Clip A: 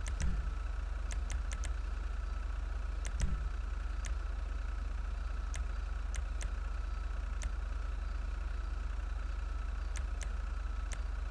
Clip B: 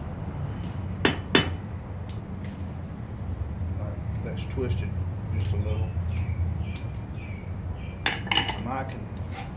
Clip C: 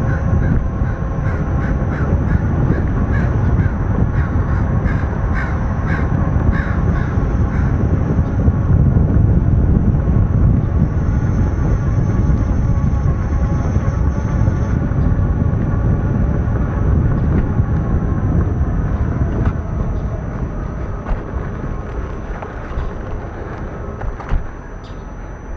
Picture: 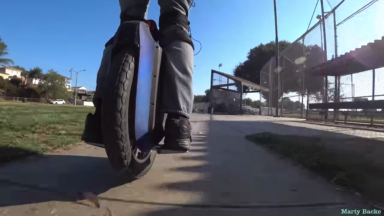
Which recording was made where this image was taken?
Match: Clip C